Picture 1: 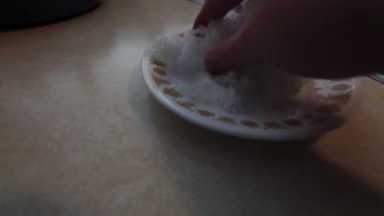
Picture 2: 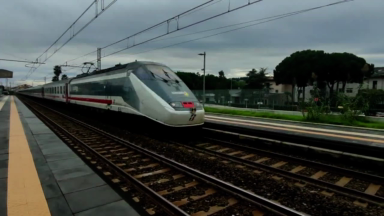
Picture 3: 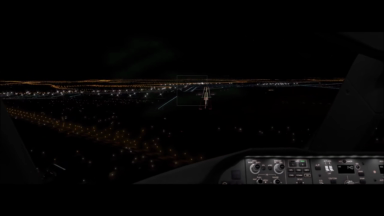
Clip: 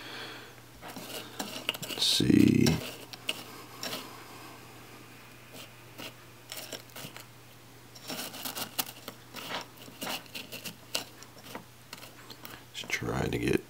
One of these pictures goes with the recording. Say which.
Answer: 1